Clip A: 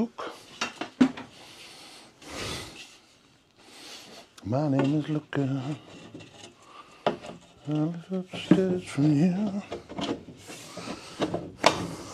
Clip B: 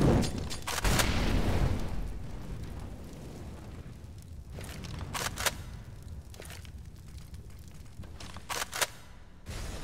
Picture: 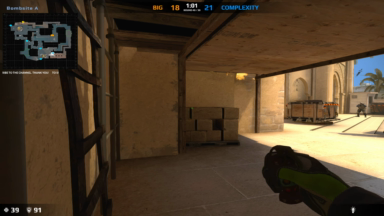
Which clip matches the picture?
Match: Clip B